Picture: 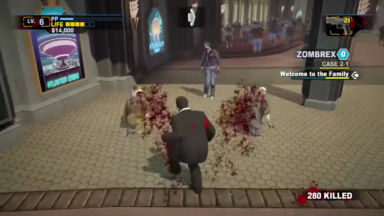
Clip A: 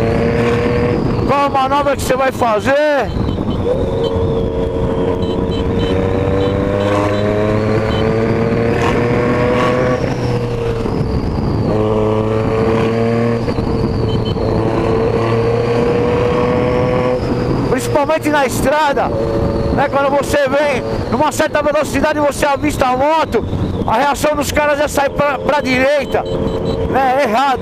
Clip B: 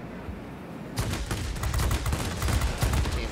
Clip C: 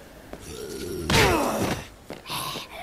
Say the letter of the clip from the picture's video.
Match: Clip C